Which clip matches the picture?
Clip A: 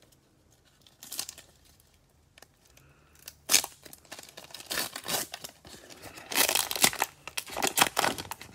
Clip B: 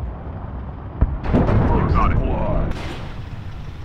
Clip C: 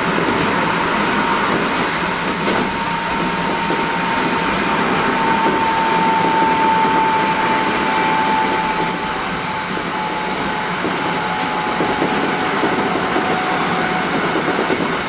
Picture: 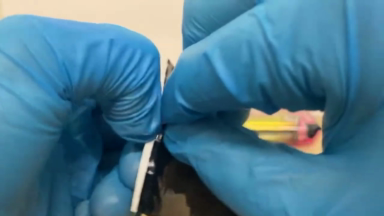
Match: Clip A